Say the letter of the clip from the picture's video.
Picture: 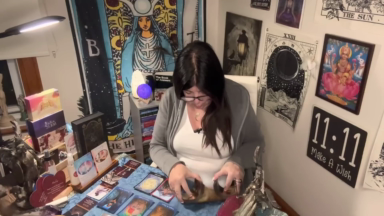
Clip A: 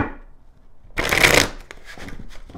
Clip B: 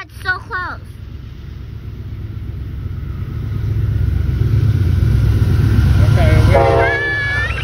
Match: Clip A